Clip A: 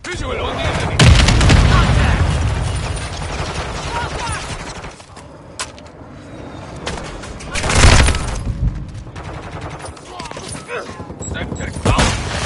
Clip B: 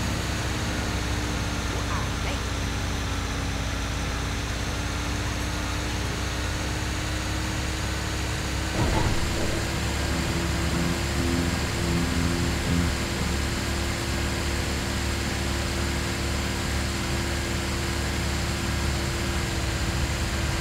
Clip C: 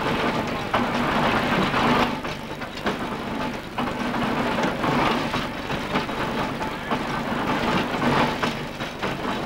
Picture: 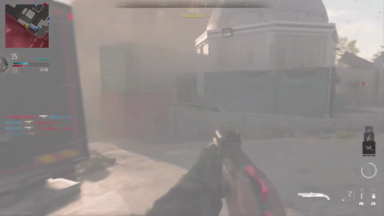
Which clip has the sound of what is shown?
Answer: A